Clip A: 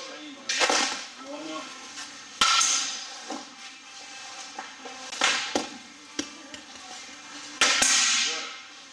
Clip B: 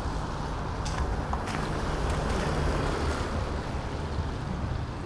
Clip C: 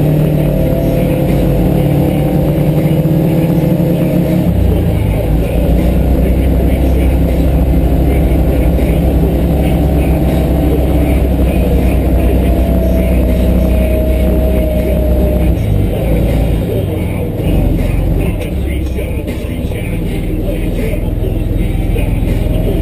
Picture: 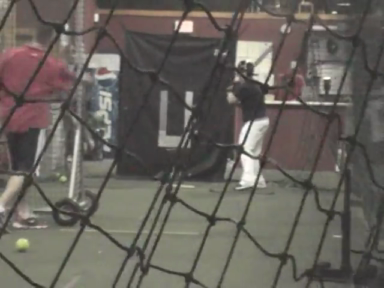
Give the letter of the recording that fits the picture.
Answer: A